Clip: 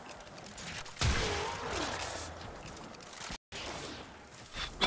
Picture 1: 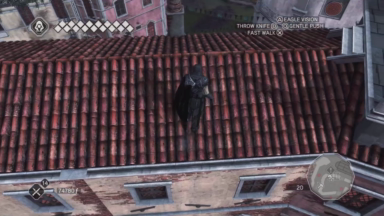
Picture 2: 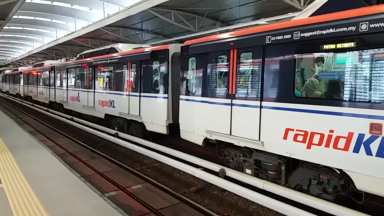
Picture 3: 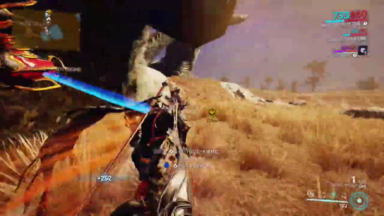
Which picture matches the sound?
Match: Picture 3